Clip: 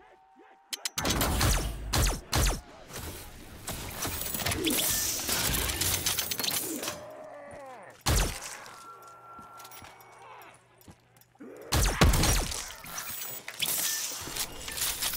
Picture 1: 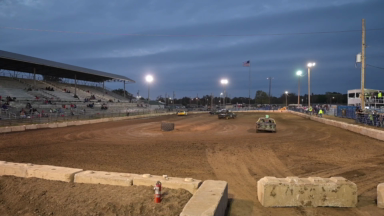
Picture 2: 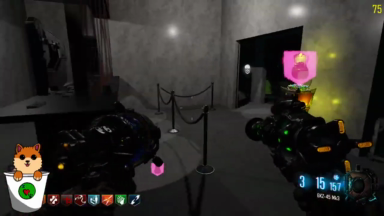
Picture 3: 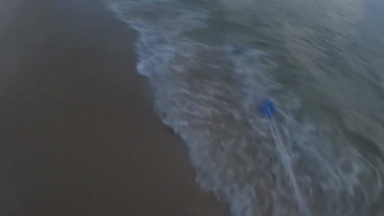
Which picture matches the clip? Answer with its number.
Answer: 2